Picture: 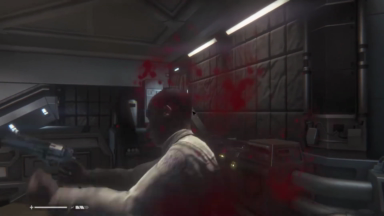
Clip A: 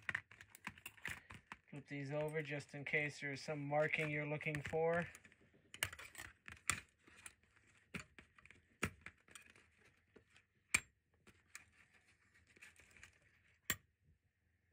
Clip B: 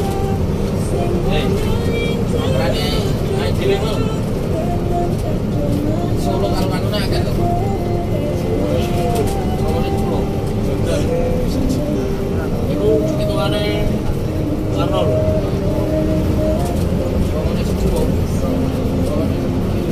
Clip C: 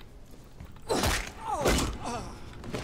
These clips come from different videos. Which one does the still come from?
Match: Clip C